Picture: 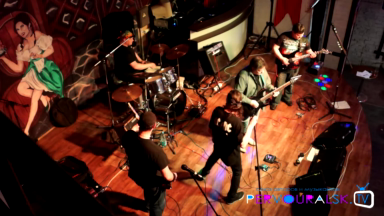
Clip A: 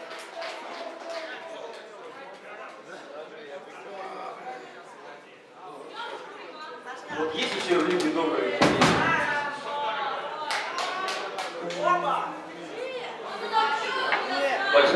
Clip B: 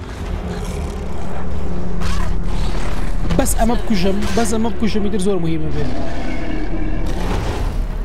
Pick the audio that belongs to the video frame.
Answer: A